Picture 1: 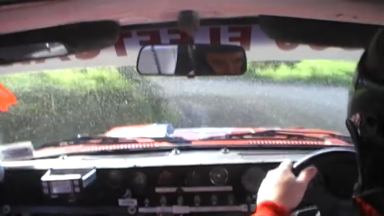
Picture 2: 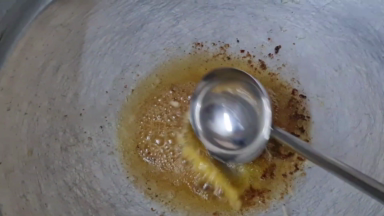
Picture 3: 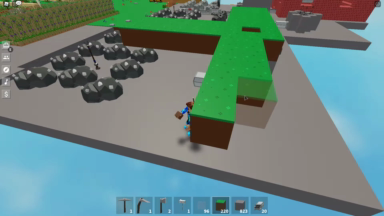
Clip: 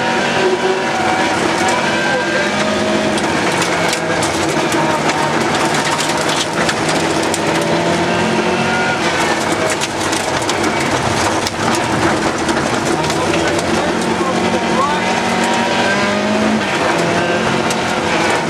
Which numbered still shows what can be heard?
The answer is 1